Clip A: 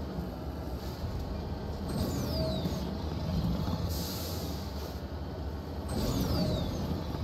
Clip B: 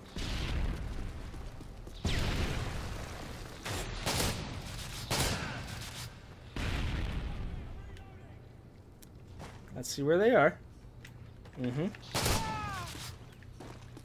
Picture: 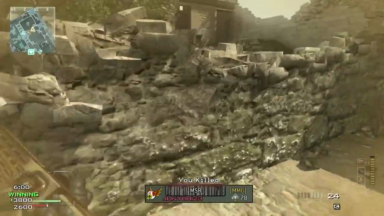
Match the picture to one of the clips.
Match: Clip B